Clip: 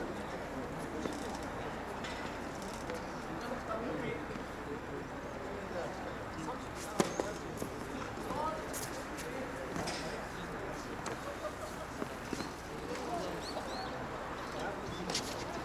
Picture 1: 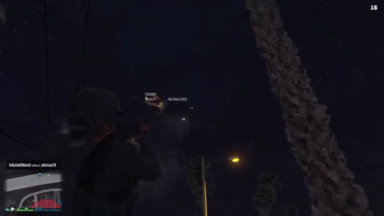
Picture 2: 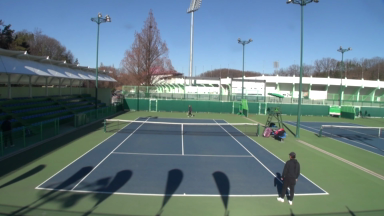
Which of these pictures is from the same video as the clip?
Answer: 2